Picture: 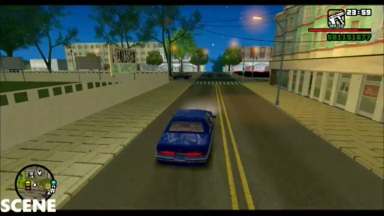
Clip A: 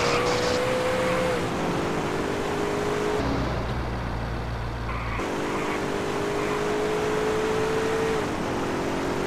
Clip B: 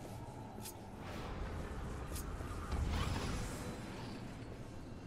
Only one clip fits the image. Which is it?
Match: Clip A